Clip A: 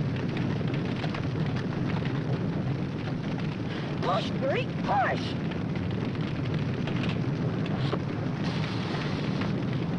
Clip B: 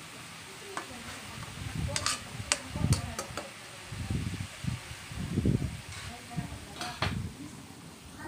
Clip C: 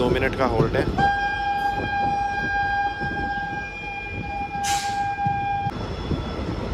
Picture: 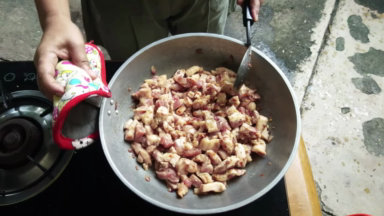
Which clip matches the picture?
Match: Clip B